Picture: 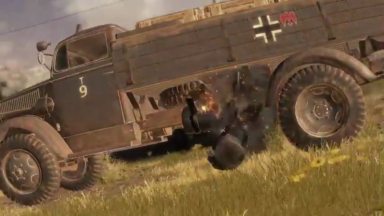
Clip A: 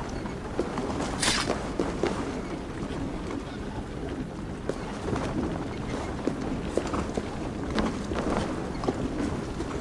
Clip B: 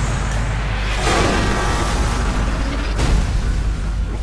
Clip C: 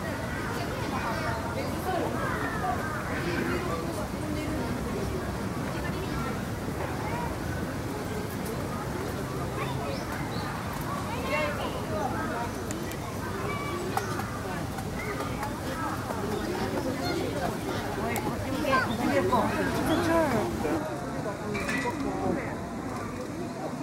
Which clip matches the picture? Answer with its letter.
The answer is B